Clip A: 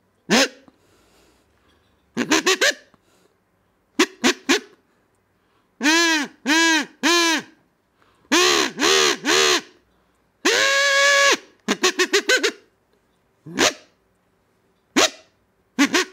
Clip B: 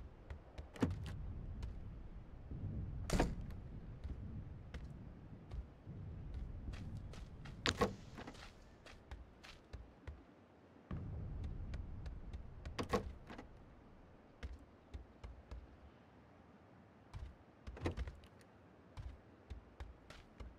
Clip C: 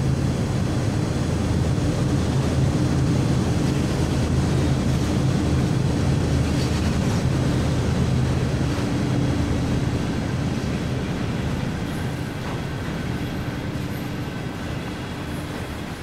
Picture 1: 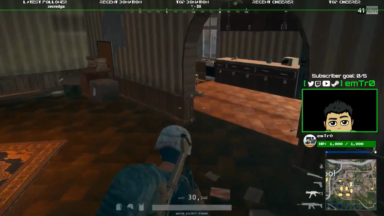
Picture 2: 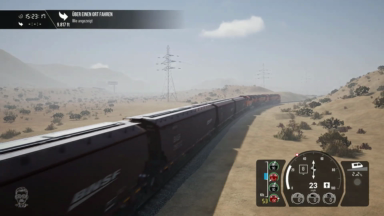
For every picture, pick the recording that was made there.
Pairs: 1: B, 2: C